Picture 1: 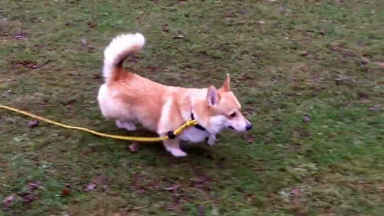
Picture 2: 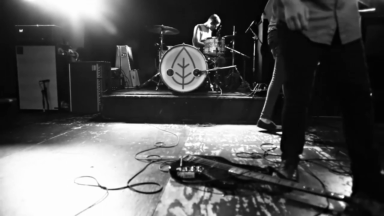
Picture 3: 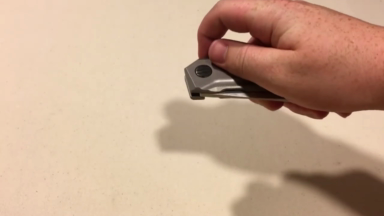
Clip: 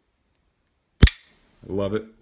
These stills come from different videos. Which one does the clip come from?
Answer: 3